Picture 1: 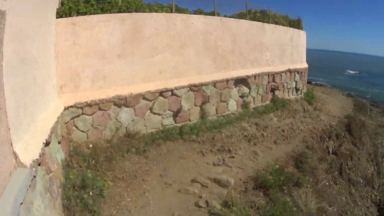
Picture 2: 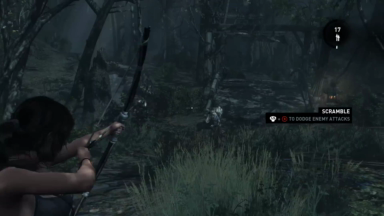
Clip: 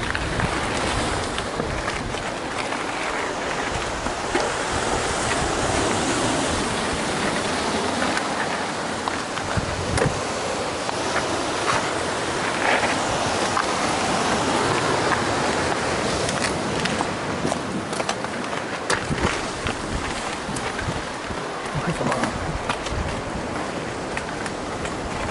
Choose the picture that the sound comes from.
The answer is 1